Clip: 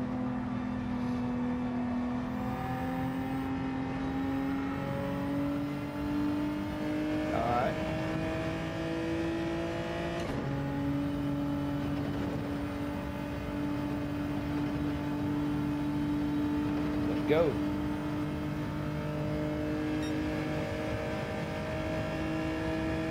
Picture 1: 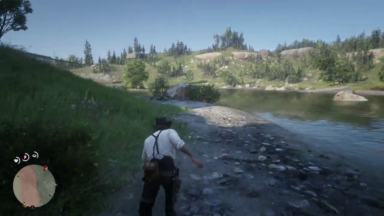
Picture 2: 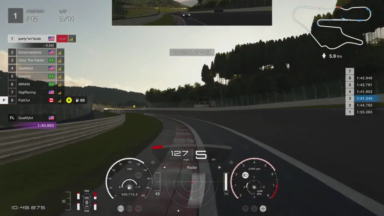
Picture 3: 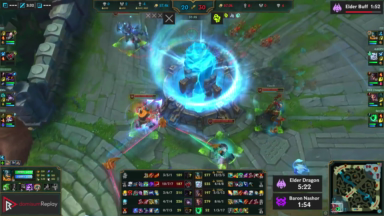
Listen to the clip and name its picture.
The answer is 2